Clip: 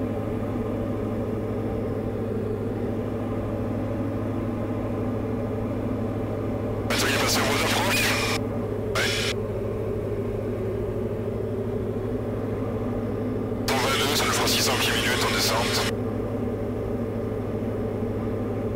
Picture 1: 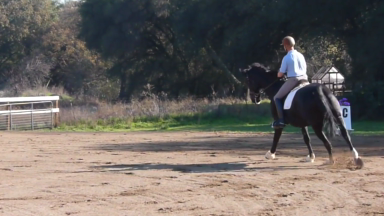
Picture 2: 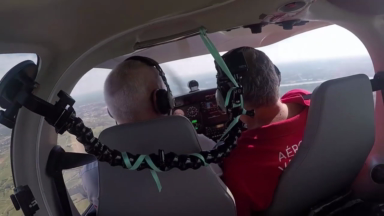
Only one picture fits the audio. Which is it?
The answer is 2